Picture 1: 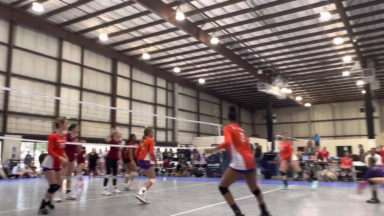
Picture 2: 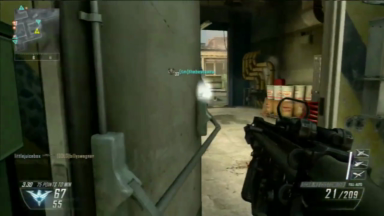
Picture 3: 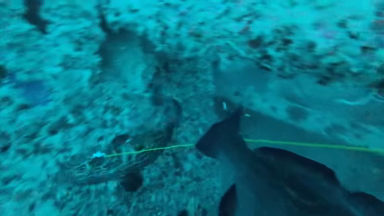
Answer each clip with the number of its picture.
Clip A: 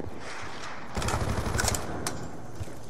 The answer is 2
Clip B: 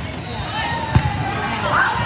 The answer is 1